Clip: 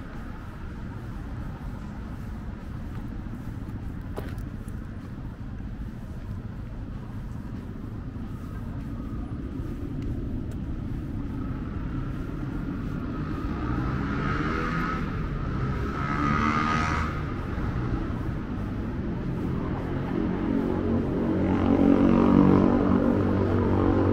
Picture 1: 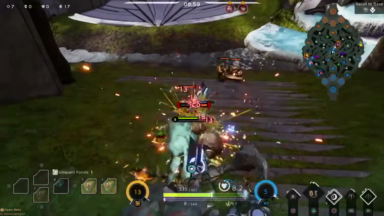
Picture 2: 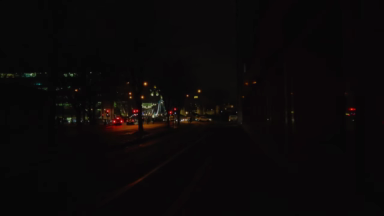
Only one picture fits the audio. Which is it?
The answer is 2